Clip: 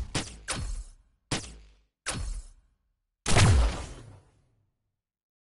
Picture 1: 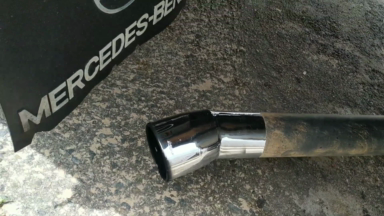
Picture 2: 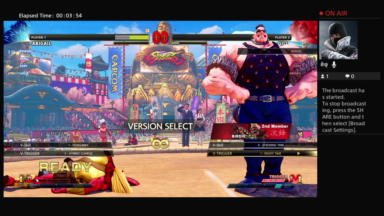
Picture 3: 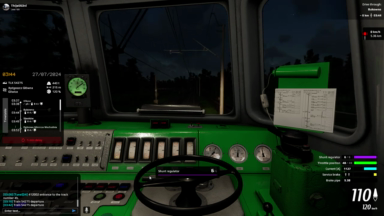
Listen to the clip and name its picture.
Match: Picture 2